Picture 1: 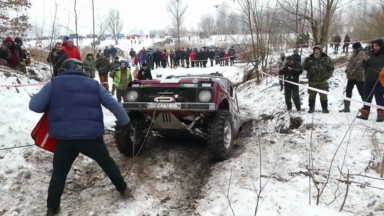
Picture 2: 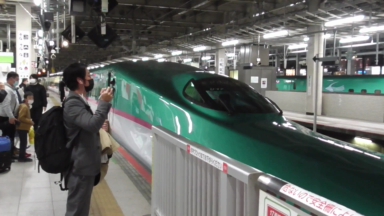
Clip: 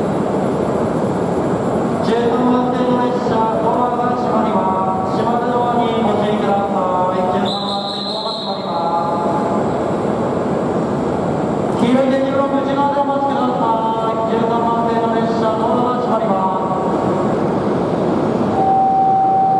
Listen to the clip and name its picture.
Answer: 2